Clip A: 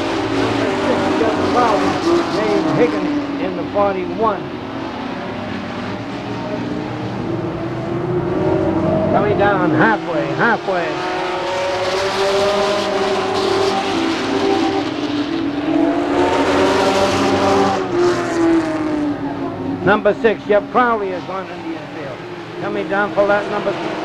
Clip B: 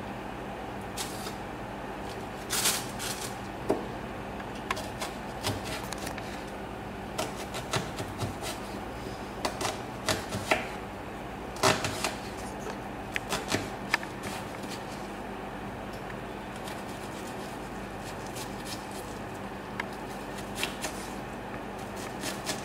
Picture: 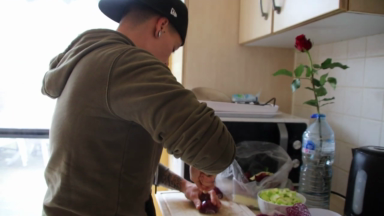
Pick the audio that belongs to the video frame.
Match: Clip B